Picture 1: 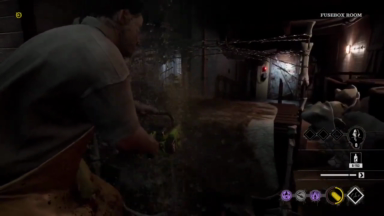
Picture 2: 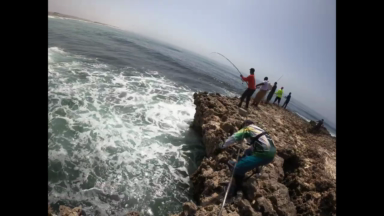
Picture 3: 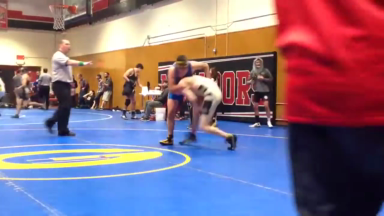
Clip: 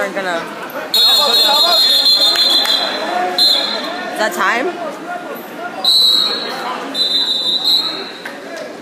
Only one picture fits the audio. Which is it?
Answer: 3